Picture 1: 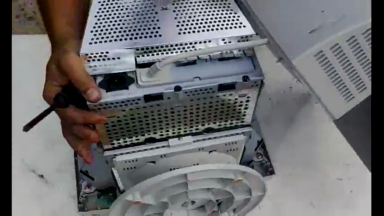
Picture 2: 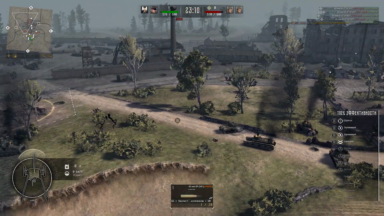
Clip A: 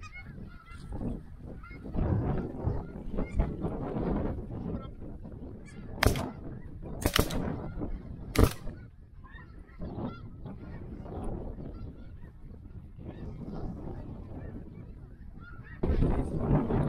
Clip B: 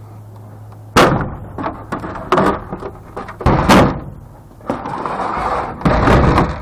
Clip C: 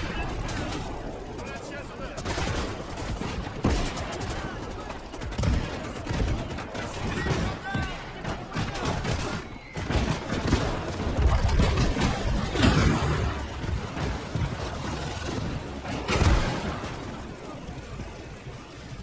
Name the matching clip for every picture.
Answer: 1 B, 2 C